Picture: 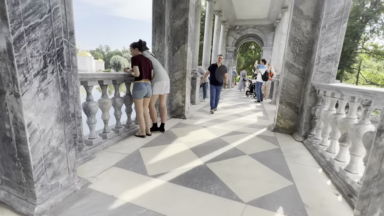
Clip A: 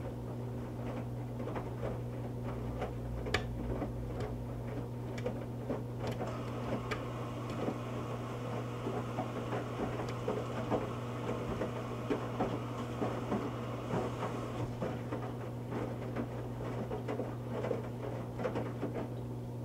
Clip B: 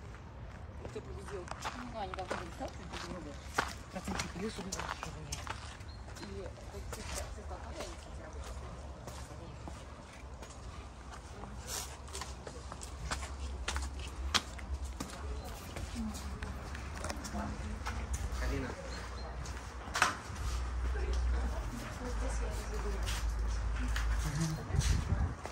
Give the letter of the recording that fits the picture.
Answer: B